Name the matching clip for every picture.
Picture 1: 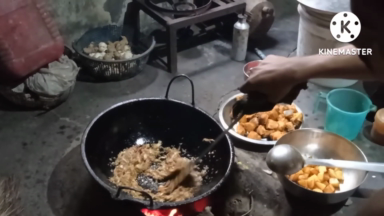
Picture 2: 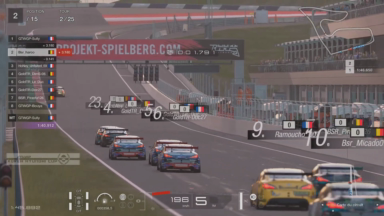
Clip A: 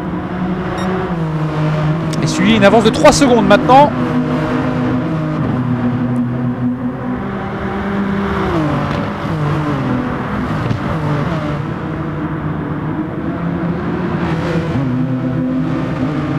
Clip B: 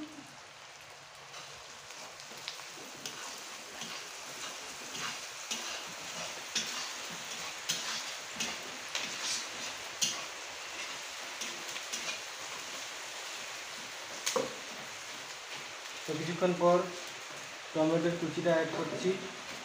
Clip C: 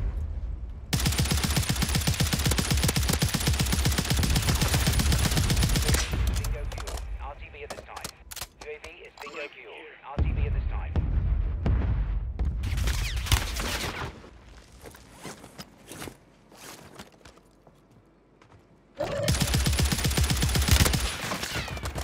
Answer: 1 B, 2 A